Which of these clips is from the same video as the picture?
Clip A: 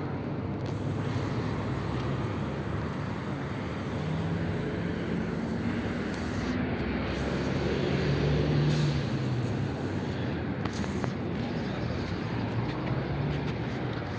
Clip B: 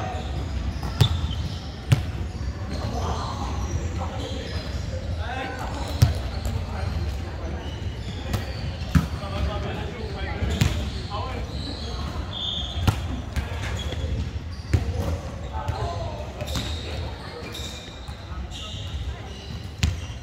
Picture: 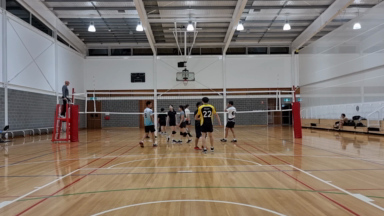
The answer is B